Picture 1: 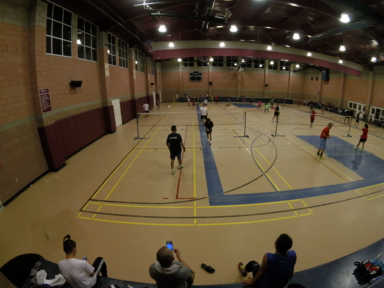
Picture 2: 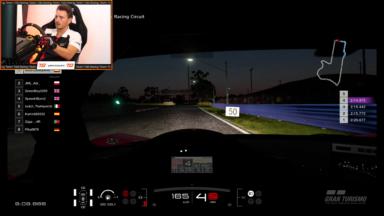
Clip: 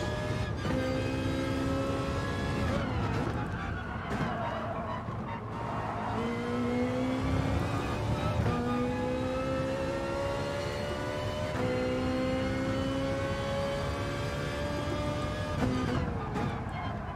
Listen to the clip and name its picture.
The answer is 2